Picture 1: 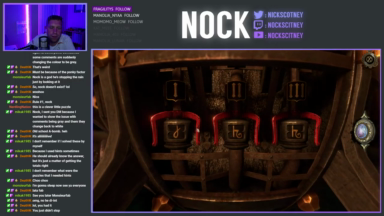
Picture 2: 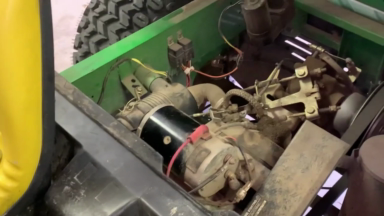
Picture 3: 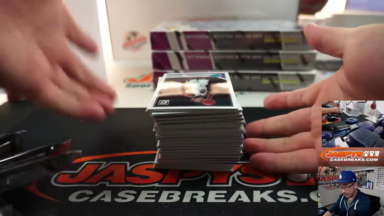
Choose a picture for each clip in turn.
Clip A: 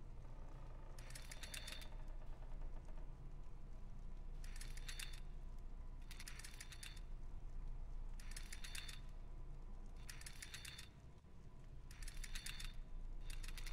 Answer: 1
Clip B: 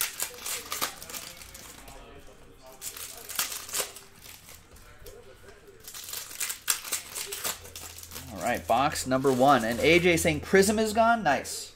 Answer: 3